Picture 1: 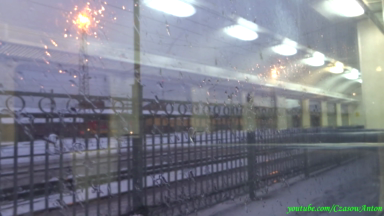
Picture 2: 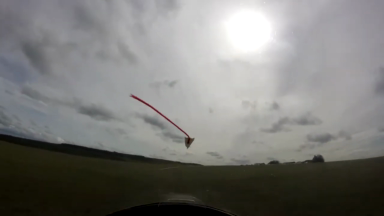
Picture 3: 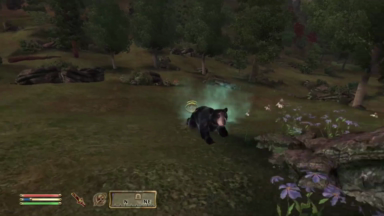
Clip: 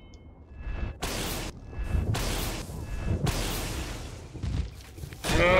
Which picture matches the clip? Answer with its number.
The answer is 3